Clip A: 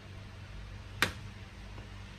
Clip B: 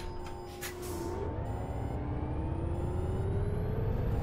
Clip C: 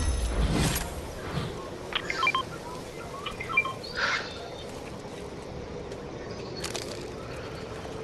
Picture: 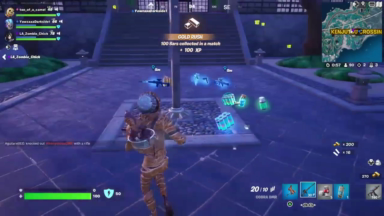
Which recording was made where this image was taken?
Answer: C